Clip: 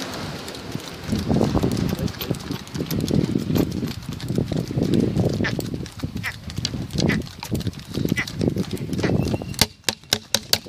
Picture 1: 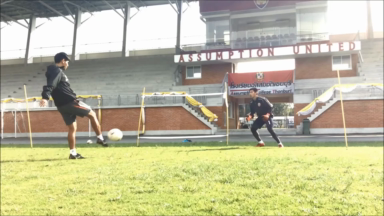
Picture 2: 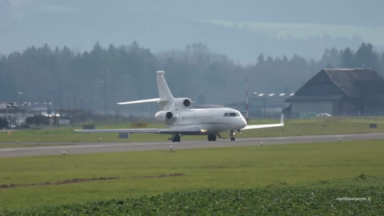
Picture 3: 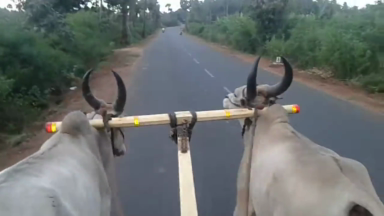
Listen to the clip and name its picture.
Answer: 3